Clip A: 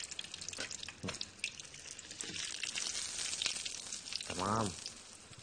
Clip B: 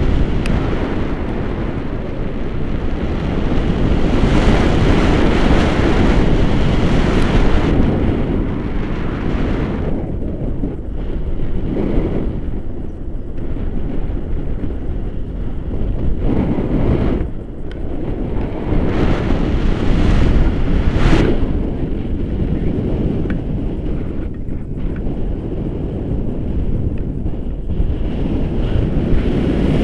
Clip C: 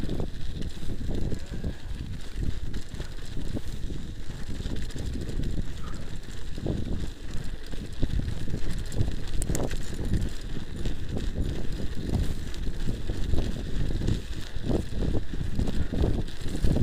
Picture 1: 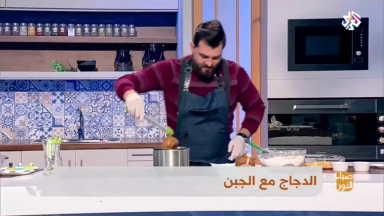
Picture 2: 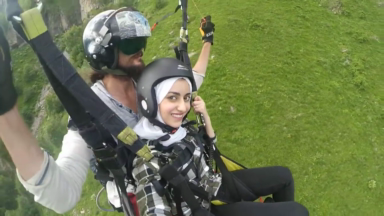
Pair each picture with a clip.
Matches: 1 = A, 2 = B